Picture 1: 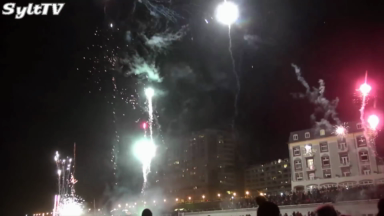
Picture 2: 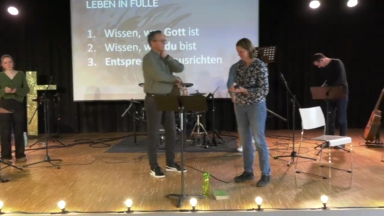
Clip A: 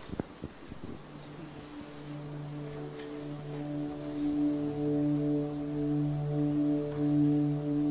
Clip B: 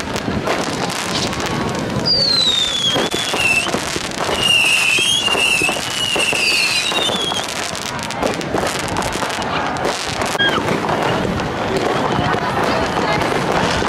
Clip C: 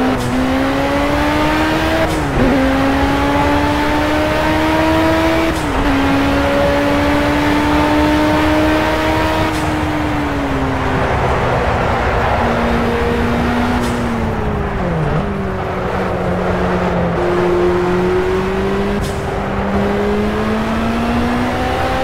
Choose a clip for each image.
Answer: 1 B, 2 A